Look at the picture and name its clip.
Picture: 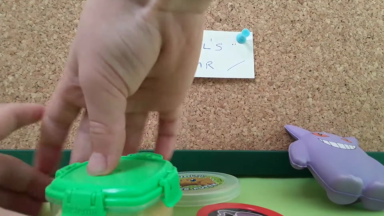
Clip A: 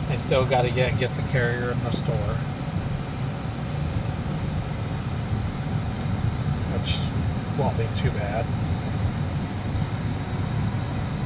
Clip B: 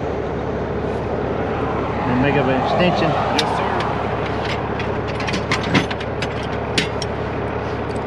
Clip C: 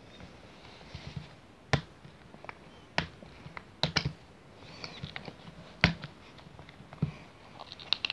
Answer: C